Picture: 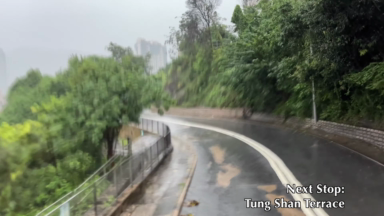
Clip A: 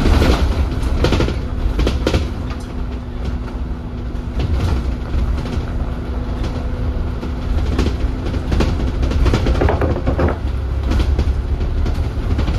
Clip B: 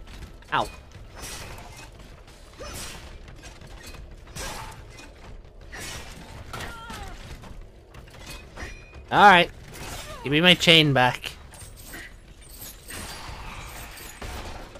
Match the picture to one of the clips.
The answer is A